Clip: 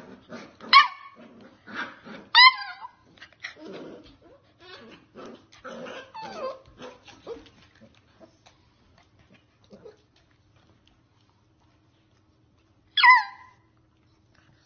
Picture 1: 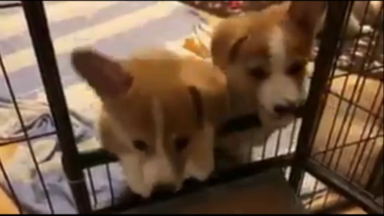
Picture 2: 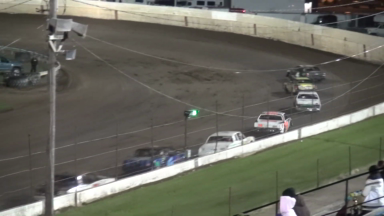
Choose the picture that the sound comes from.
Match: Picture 1